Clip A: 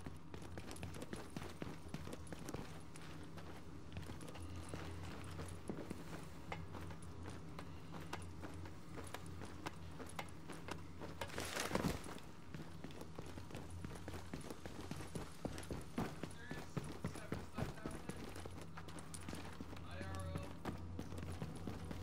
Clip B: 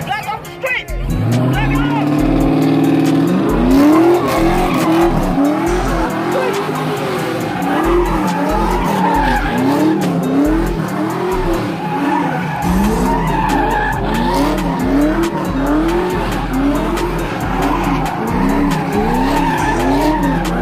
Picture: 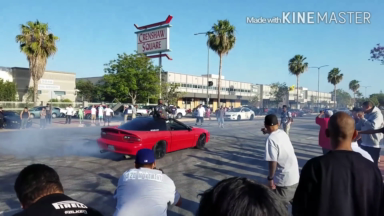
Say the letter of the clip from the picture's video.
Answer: B